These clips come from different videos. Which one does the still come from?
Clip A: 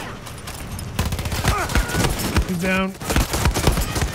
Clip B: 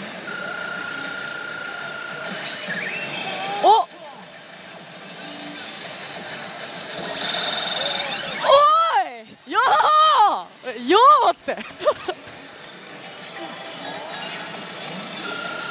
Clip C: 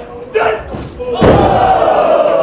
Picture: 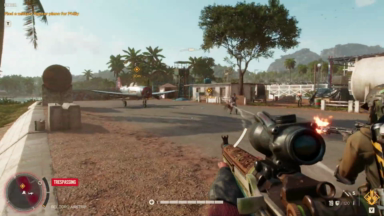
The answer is A